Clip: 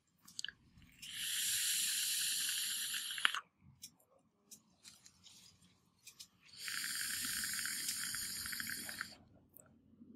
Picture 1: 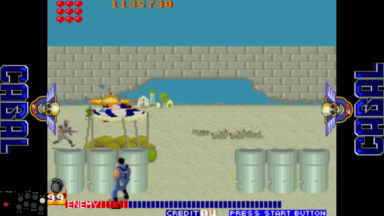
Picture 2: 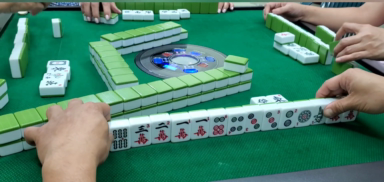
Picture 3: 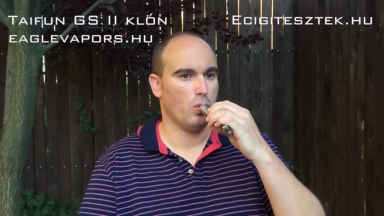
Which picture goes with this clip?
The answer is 3